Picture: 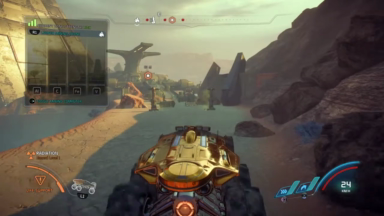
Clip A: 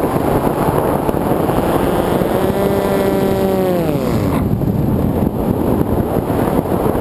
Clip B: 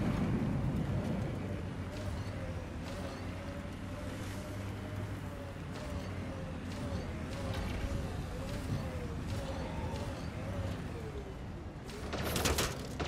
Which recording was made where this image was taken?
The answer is B